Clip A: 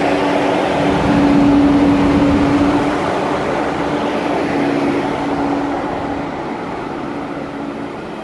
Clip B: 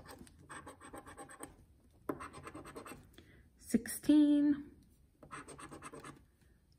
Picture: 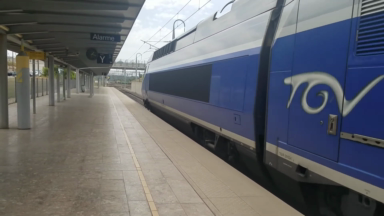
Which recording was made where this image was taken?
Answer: A